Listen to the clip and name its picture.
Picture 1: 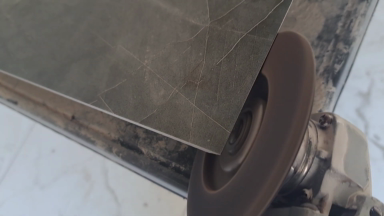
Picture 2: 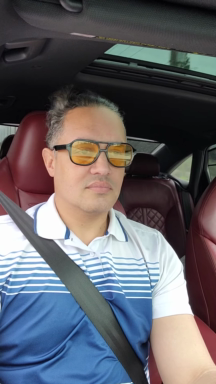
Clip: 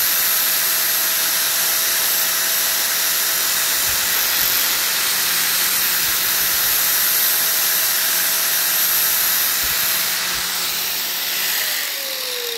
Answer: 1